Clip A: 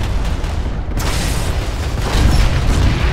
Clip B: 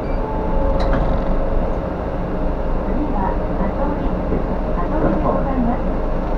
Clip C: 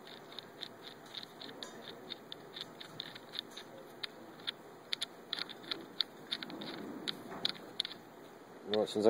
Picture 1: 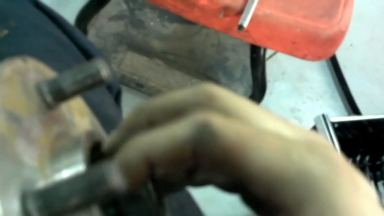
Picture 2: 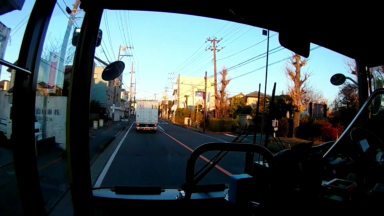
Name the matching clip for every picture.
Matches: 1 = C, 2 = B